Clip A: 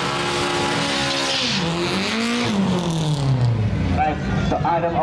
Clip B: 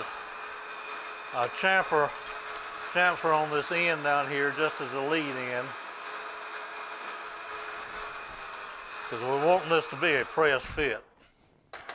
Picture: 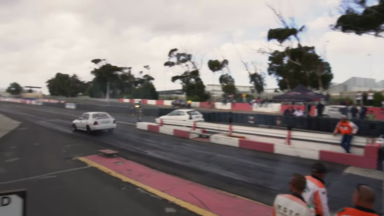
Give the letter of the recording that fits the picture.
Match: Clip A